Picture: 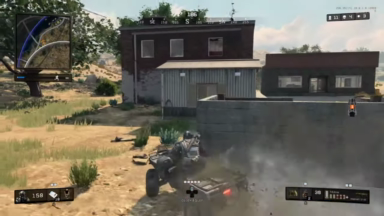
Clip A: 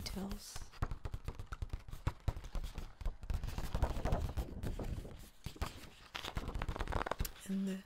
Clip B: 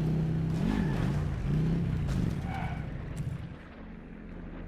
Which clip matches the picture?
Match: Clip B